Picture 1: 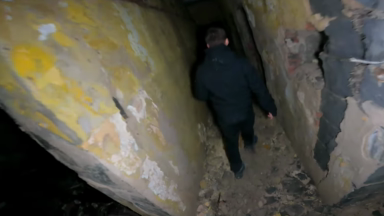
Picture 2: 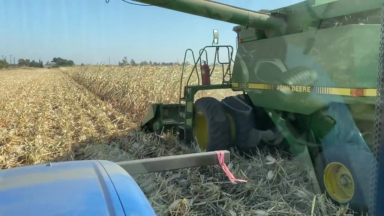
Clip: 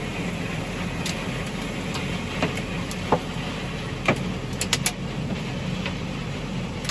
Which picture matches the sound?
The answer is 2